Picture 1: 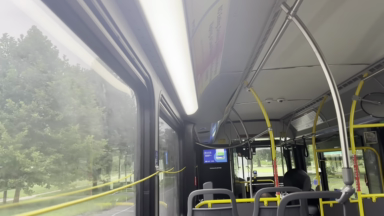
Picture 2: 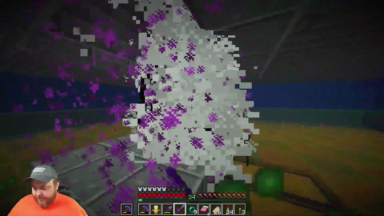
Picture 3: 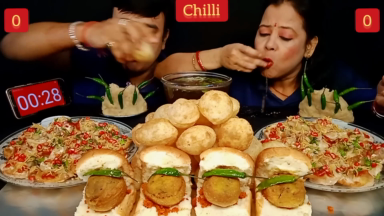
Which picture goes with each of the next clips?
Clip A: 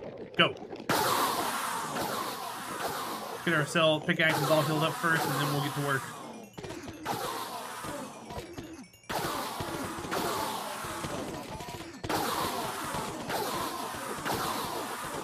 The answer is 2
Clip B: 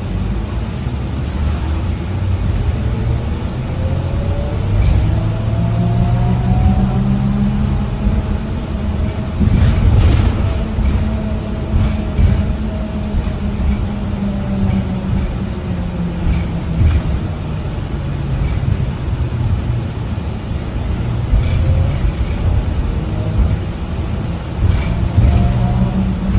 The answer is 1